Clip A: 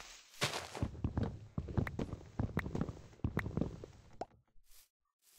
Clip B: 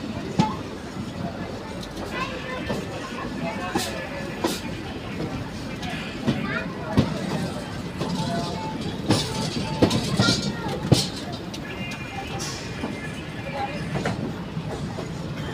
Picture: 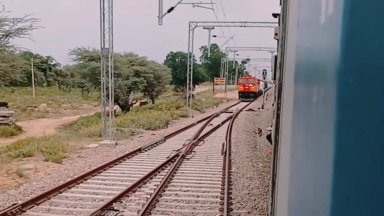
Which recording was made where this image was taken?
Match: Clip B